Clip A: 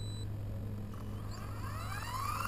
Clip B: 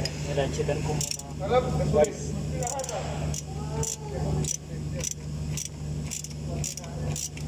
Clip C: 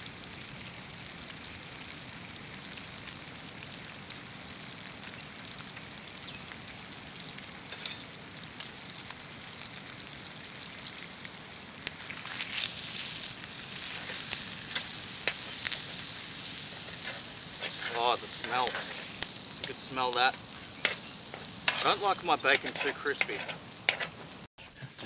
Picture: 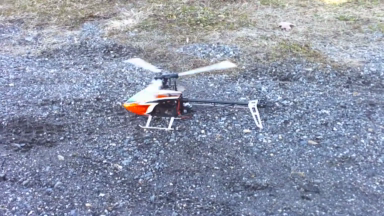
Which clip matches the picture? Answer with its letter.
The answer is A